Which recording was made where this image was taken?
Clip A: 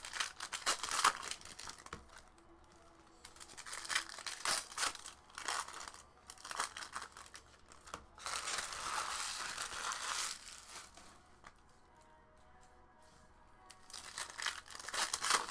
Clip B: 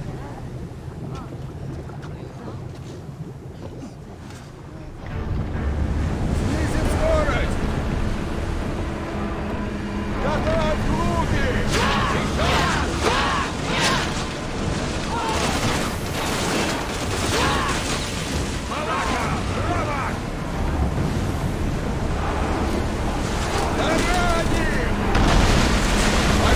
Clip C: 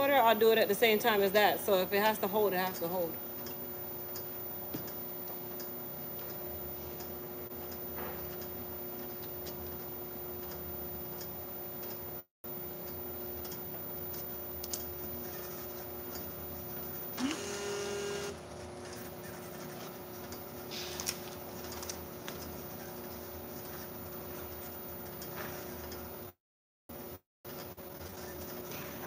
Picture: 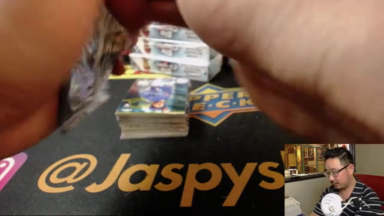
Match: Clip A